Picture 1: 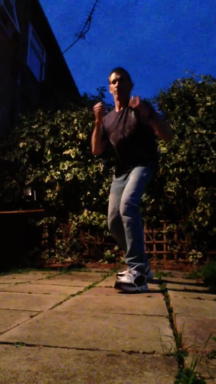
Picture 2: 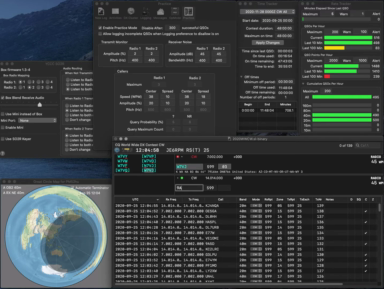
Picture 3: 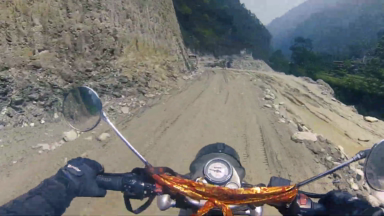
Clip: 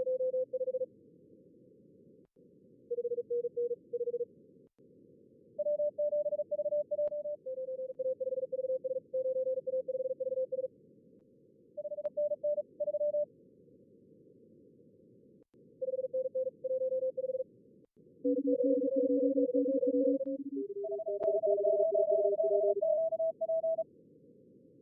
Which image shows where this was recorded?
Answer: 2